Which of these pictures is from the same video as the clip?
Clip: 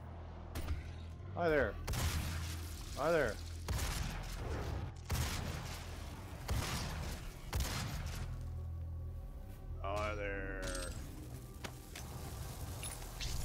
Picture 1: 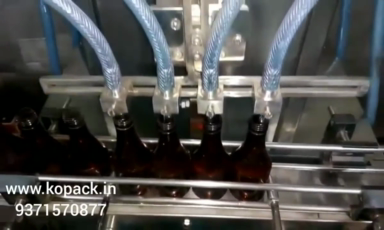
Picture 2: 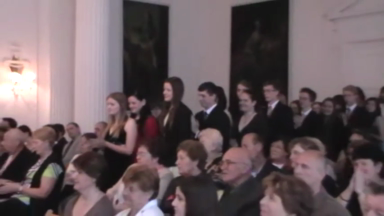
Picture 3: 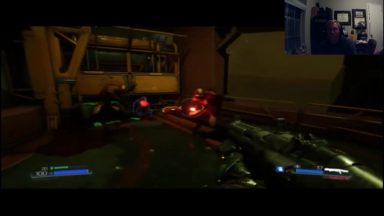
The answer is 3